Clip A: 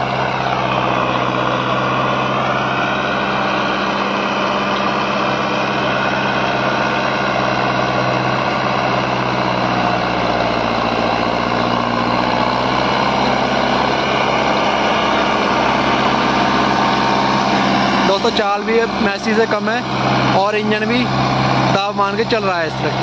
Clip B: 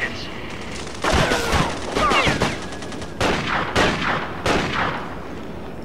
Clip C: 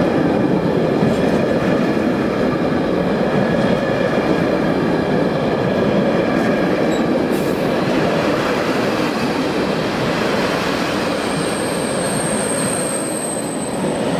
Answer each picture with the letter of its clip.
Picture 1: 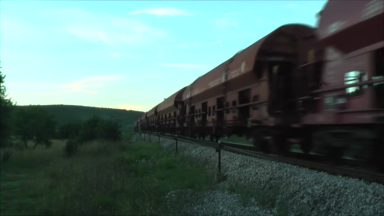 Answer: C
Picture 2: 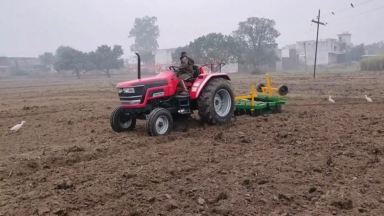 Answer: A